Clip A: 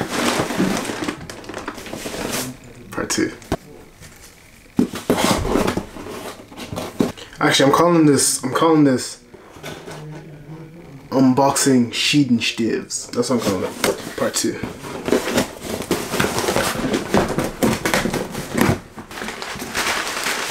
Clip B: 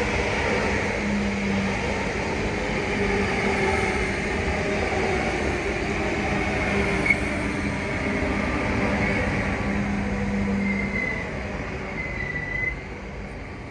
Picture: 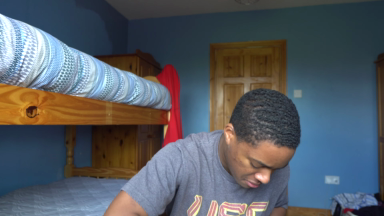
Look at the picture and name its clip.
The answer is A